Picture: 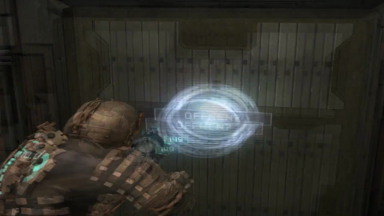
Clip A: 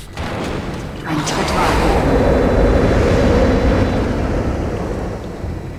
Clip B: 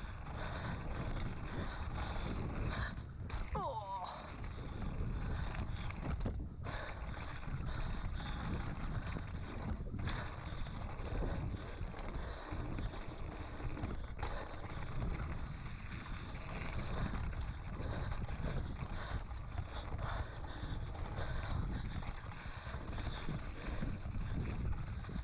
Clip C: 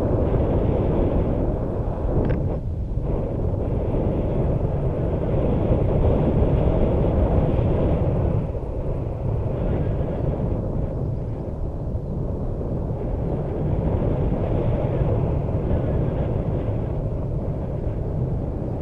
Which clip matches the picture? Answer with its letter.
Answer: A